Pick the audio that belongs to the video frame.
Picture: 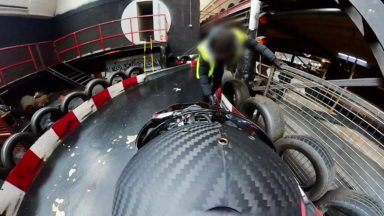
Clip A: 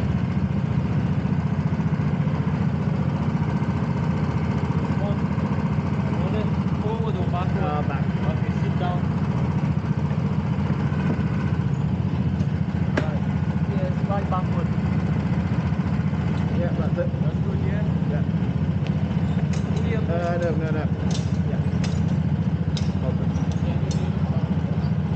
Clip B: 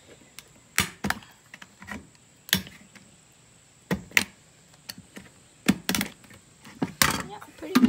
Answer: A